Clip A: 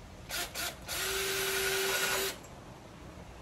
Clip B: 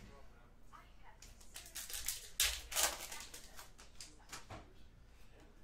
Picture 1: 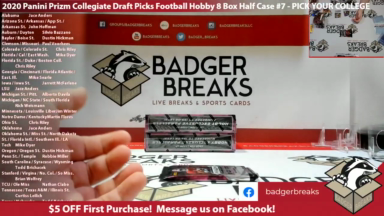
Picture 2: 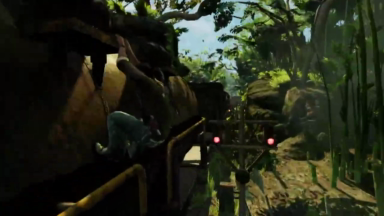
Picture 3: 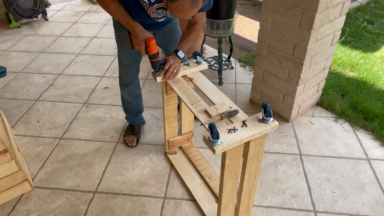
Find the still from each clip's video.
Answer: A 3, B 1